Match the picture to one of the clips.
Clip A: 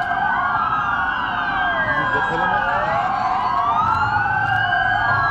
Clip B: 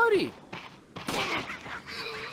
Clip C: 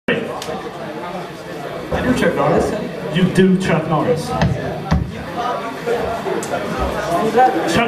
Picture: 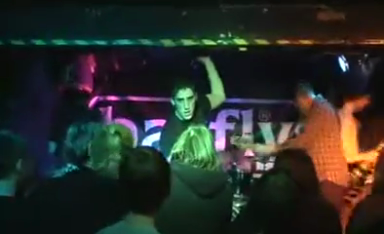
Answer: C